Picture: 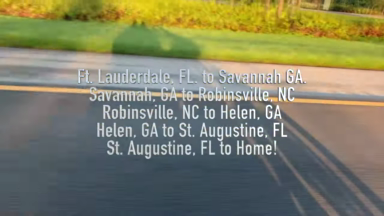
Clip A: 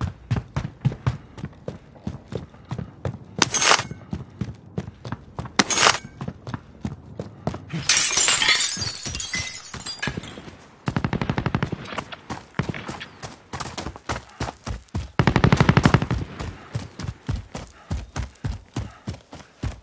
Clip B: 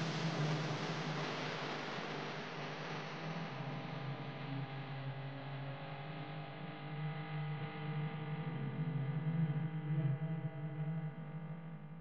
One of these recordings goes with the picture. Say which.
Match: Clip B